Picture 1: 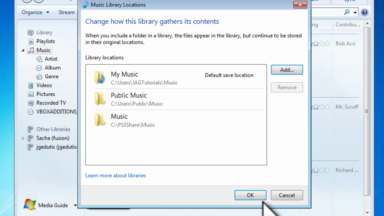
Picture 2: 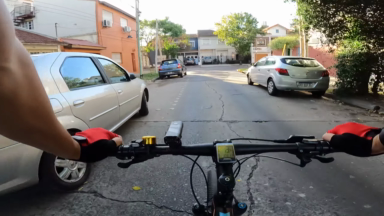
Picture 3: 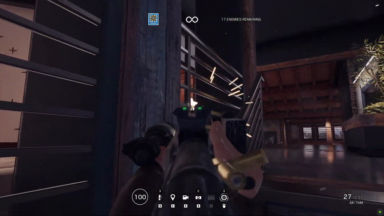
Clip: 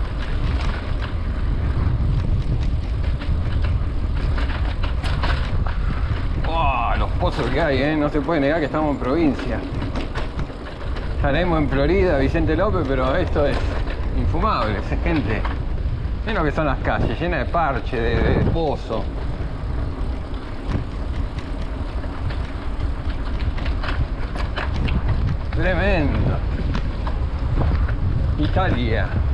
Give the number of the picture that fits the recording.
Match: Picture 2